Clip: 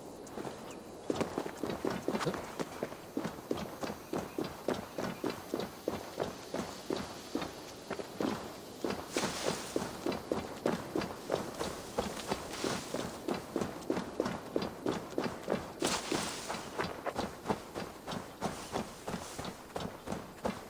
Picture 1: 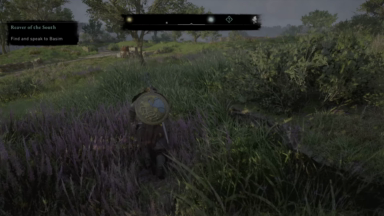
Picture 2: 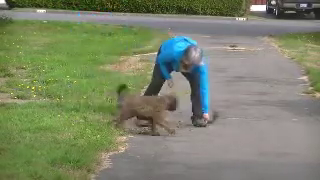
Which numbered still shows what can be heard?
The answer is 1